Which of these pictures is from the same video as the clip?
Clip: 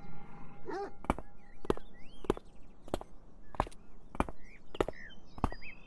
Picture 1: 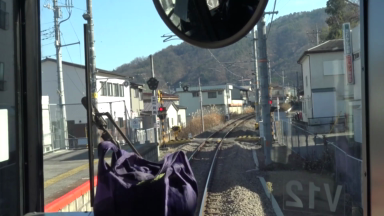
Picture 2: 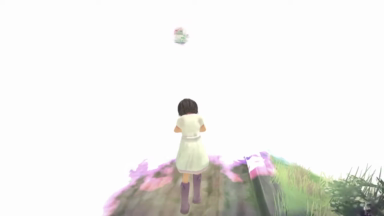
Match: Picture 2